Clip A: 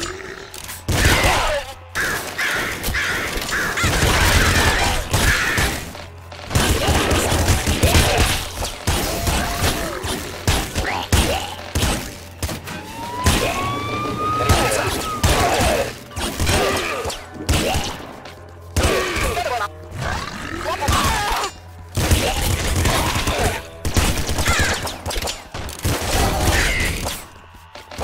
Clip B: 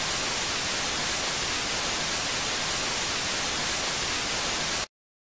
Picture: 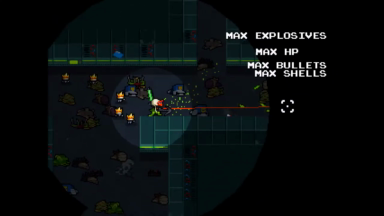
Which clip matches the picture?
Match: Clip A